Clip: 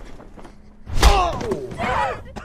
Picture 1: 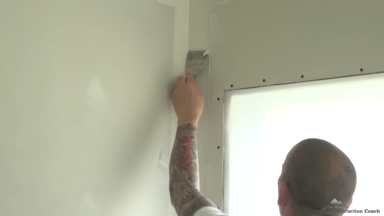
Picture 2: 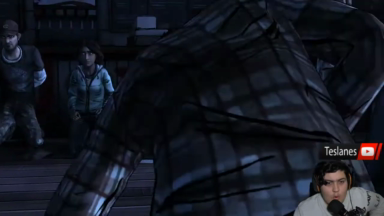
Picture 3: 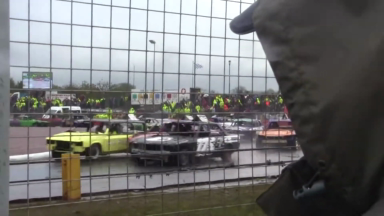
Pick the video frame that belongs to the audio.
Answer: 2